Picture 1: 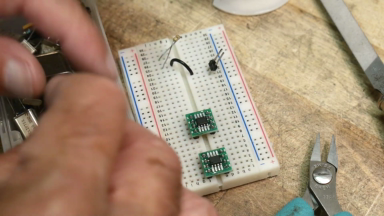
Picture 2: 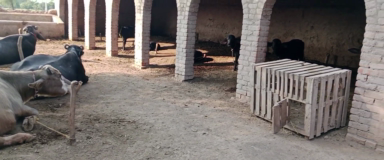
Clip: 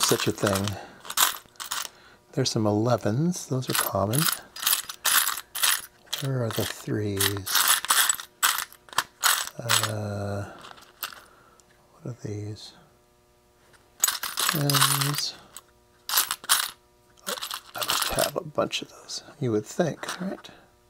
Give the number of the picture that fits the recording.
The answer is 1